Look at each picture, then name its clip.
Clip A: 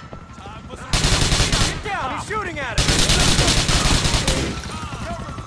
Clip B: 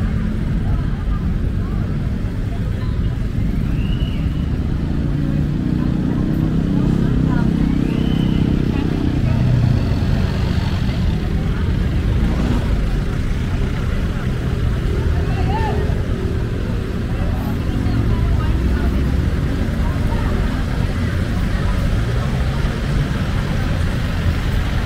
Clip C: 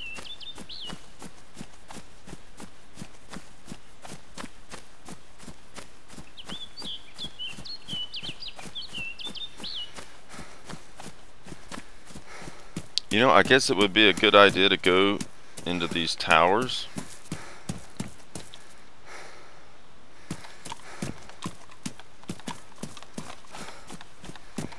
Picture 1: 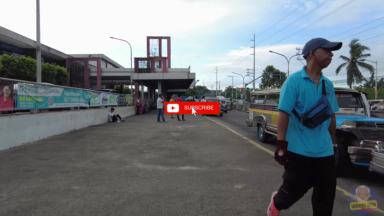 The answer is B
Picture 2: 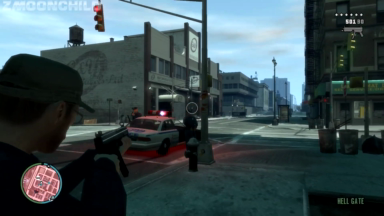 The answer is A